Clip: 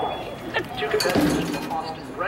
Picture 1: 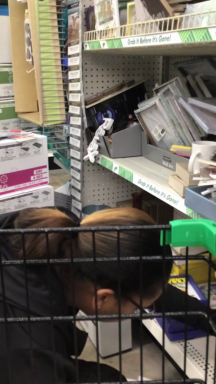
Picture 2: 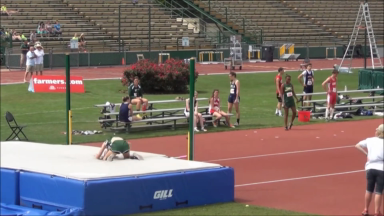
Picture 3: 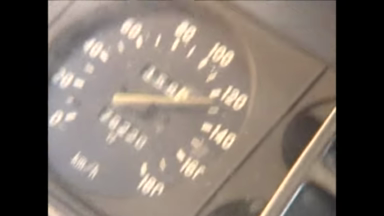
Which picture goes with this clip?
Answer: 2